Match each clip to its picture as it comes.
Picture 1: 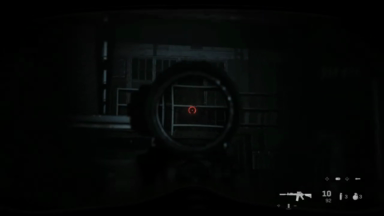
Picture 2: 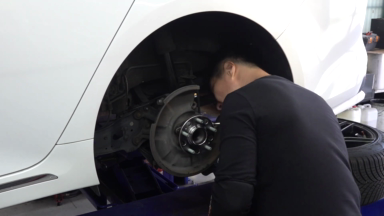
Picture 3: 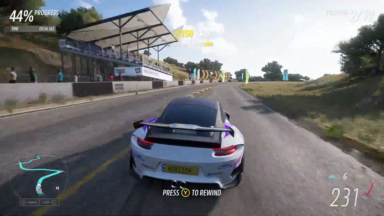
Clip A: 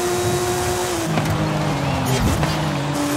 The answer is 3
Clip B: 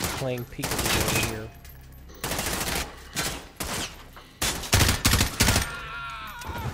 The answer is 1